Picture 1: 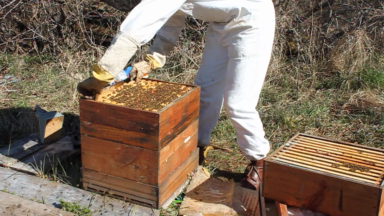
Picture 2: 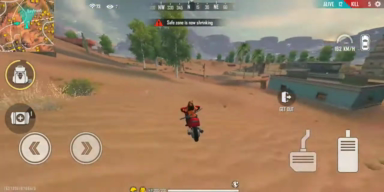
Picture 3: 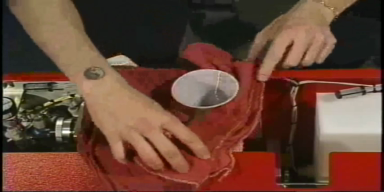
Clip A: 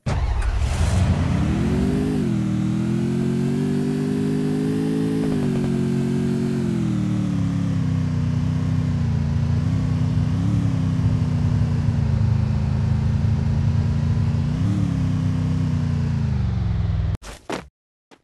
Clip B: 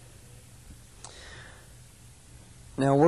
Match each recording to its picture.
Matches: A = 2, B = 3